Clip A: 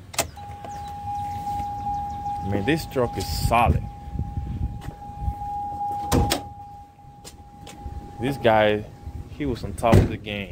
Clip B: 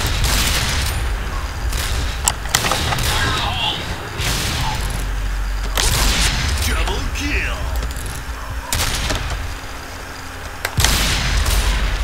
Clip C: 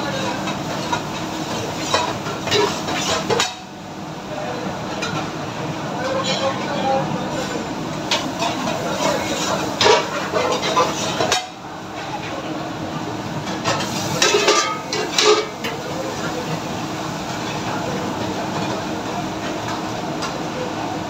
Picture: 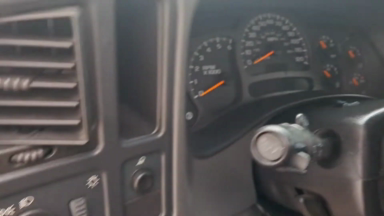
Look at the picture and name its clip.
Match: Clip A